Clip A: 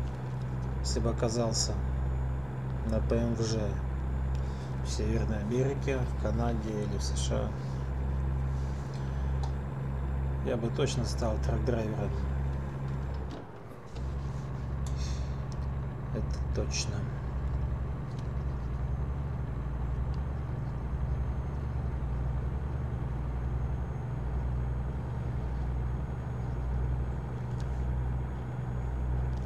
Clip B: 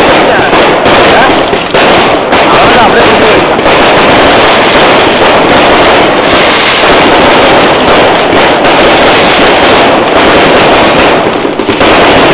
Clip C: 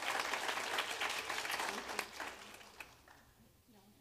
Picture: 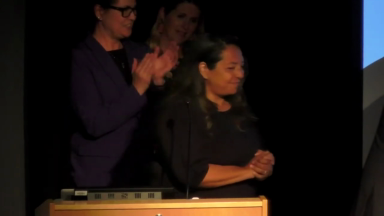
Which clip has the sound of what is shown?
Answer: C